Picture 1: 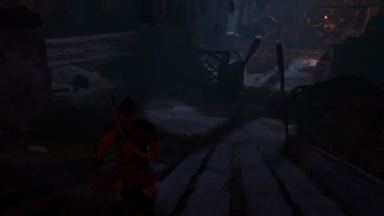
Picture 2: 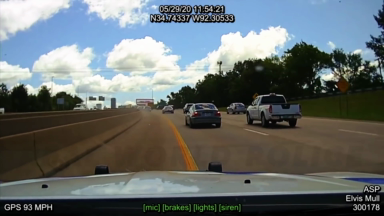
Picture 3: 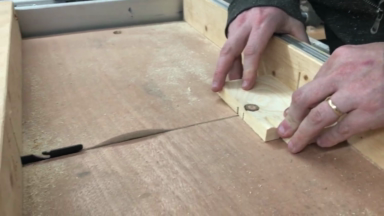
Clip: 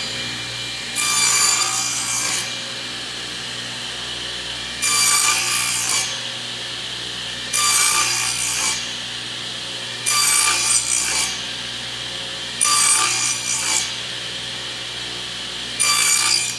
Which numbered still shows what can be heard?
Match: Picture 3